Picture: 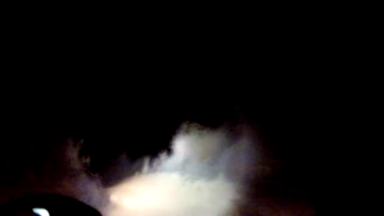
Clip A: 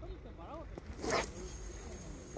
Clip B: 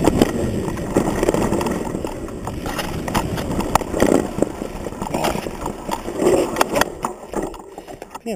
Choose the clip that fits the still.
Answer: B